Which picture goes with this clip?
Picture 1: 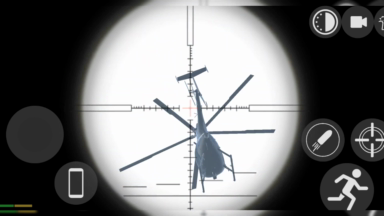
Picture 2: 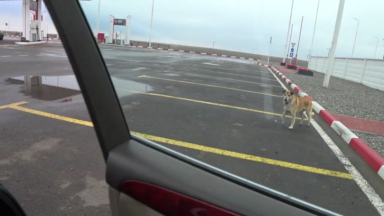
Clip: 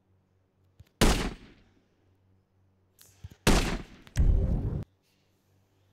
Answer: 1